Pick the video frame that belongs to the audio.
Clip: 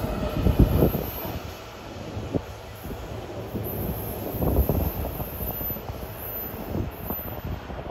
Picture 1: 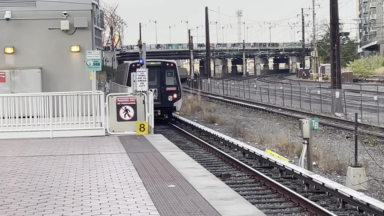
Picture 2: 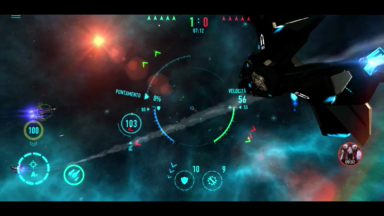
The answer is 1